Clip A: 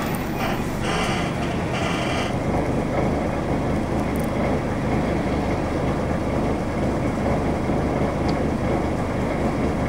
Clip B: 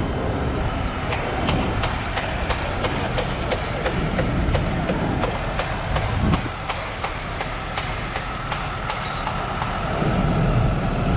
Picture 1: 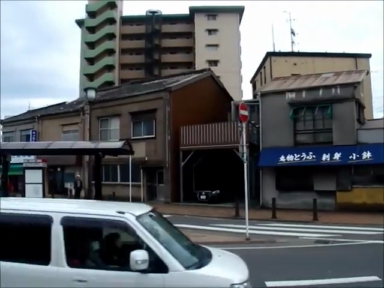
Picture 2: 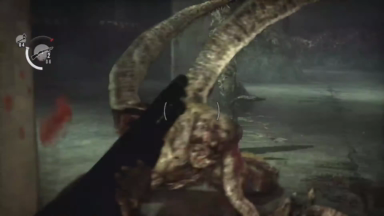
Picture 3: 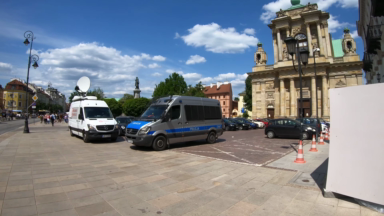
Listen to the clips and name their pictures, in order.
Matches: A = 1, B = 3